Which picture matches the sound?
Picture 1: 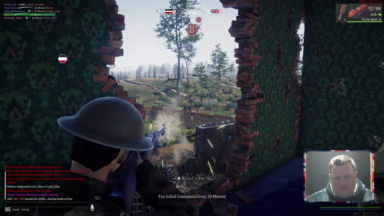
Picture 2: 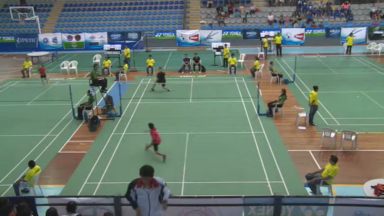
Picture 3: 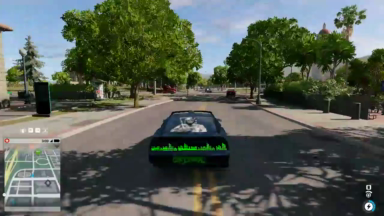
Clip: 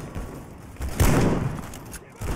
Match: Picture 1